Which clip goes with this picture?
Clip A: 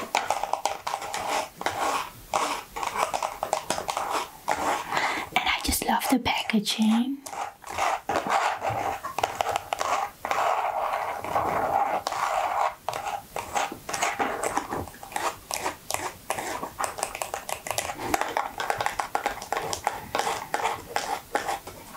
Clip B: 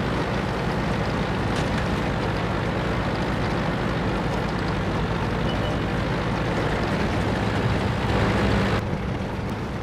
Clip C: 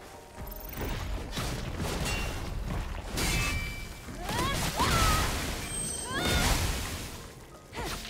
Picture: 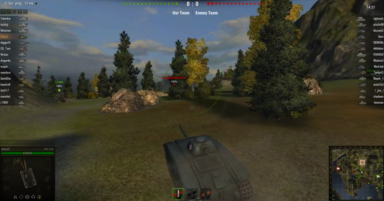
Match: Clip B